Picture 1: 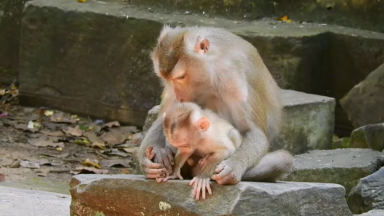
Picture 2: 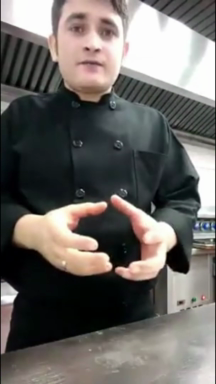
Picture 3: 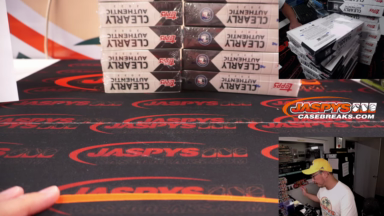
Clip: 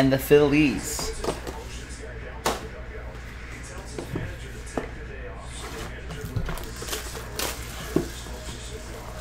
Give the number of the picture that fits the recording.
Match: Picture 3